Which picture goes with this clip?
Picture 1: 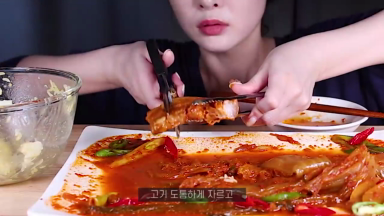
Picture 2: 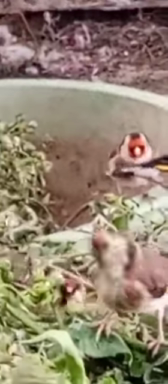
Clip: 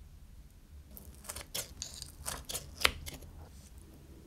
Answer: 1